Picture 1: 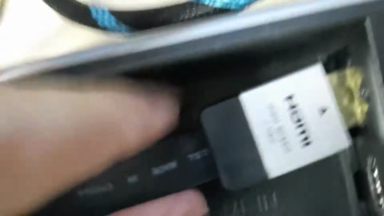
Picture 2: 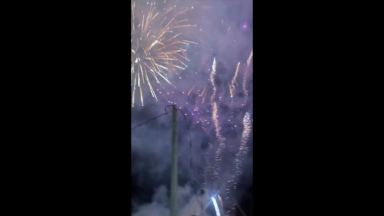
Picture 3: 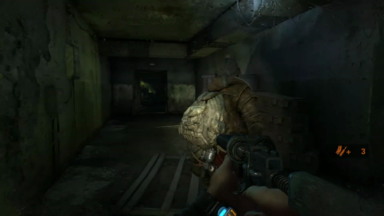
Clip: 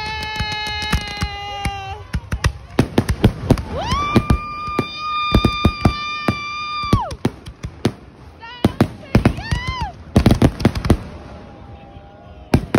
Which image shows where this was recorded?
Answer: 2